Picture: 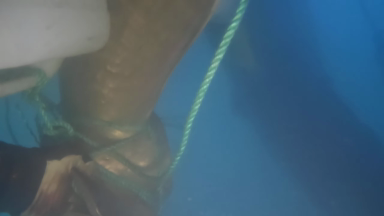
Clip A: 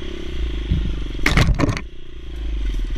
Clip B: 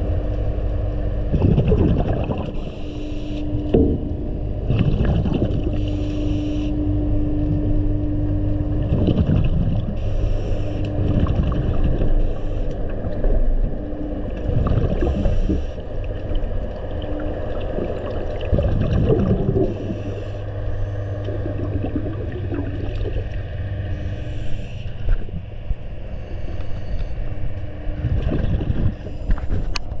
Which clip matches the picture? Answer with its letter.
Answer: B